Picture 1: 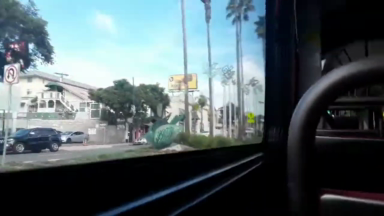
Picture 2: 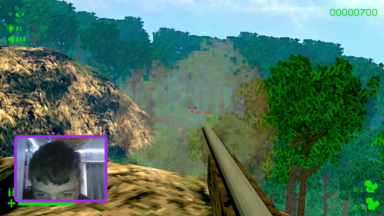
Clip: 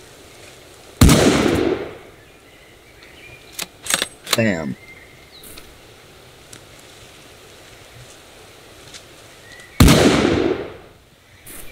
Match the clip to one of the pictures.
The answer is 2